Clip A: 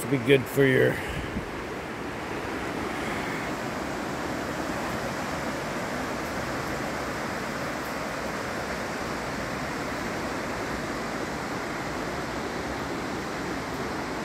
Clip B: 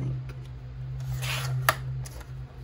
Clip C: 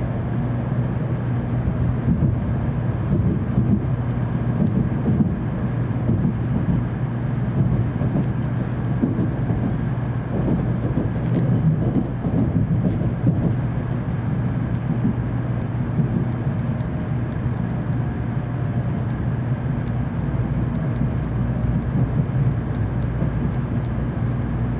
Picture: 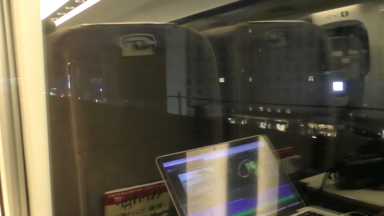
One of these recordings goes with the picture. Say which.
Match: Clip C